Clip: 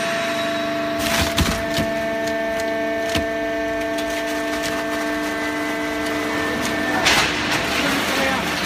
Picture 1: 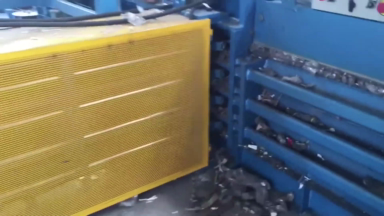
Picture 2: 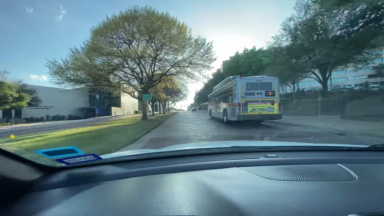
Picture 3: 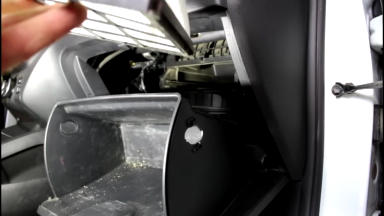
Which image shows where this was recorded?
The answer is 1